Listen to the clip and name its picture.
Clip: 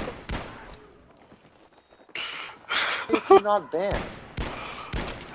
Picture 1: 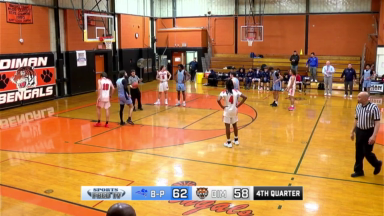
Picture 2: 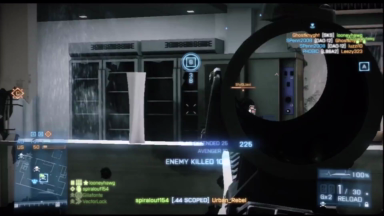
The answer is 2